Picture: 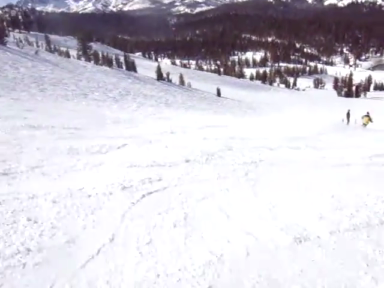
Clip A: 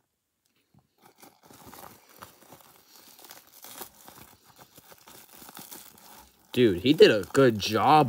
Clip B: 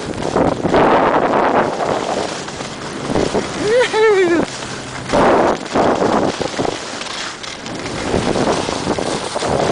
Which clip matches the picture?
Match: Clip B